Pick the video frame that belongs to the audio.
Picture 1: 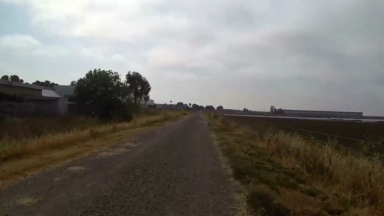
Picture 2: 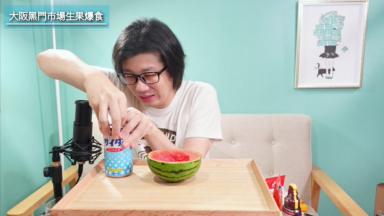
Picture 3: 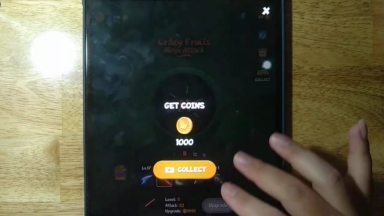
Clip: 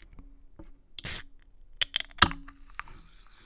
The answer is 2